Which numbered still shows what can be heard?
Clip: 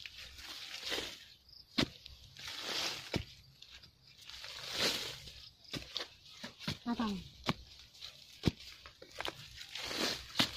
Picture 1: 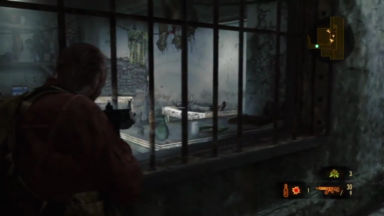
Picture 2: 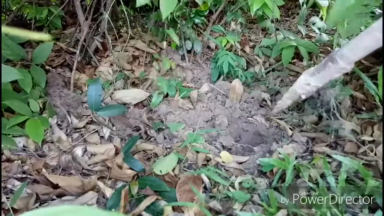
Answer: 2